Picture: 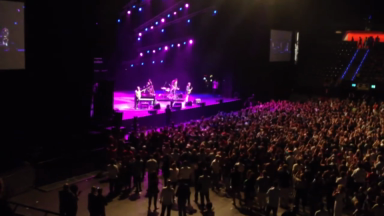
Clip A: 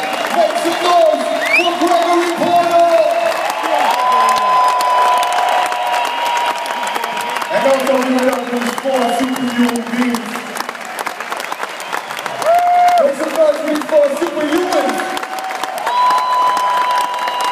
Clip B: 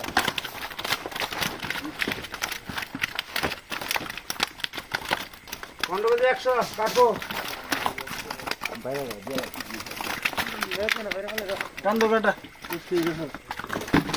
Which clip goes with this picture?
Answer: A